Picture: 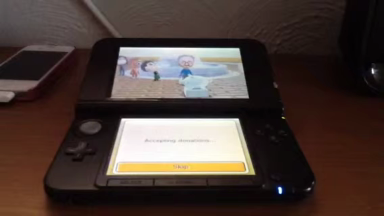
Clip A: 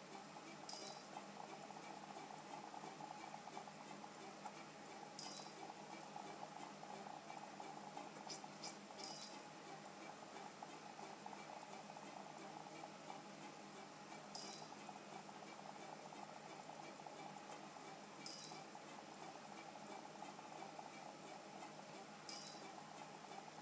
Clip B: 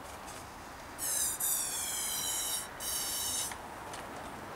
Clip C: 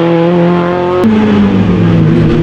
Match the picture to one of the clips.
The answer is A